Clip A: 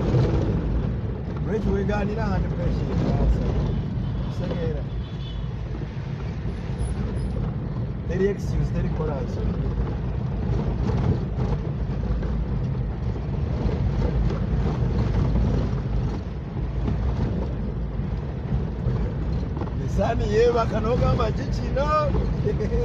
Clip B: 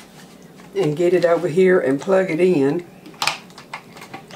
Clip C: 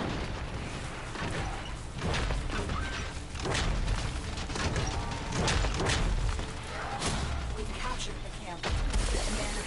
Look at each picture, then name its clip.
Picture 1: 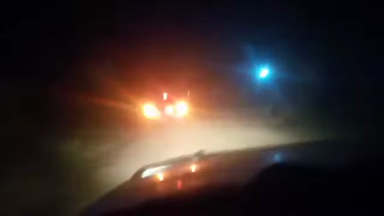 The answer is A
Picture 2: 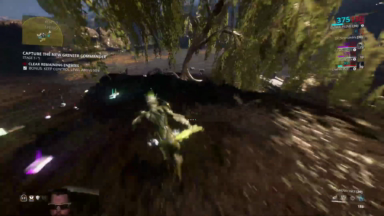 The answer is C